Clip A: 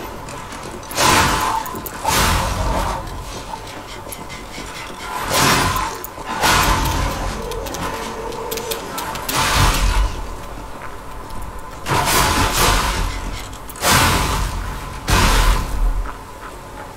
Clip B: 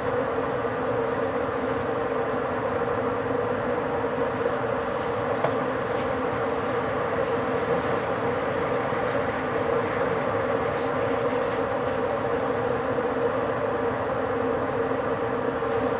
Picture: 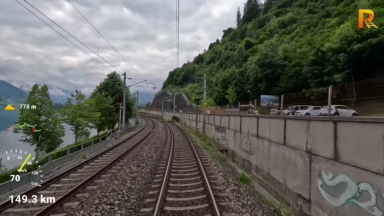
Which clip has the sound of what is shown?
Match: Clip B